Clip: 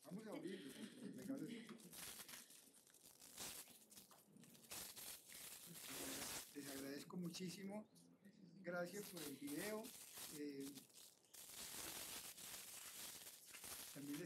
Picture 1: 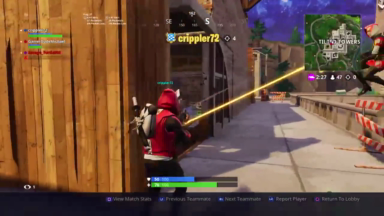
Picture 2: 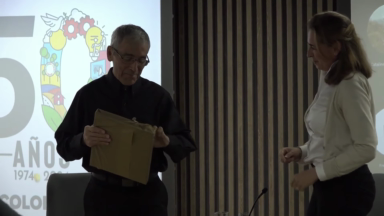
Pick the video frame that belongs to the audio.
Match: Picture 2